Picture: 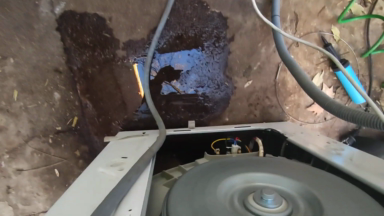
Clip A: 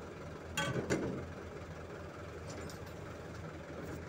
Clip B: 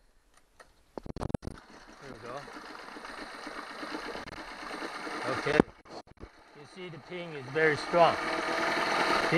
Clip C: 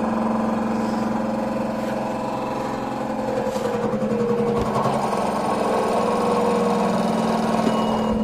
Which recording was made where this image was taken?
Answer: C